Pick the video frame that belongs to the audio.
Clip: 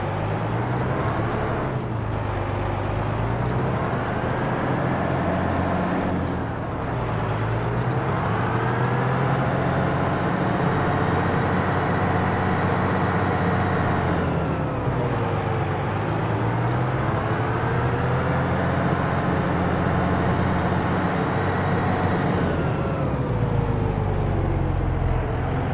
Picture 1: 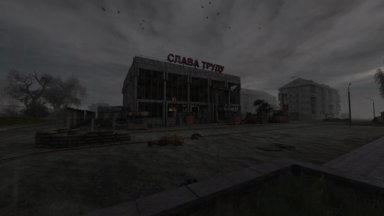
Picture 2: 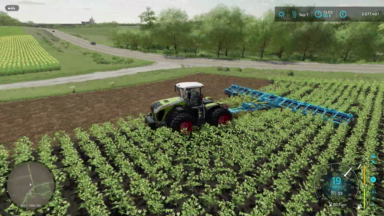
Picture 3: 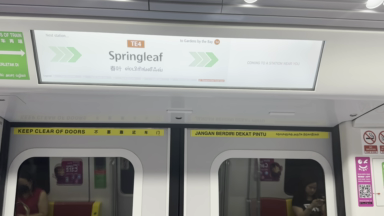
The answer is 2